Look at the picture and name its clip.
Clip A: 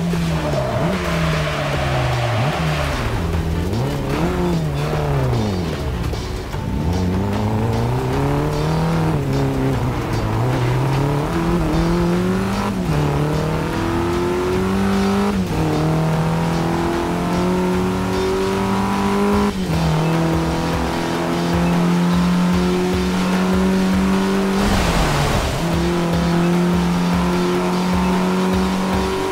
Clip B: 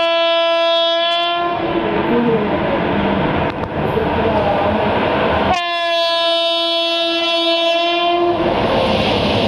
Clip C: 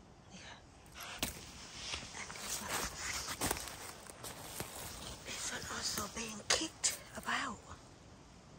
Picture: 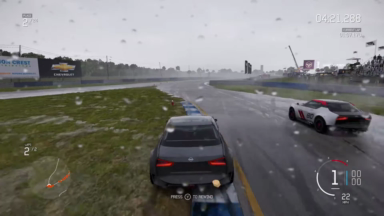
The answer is A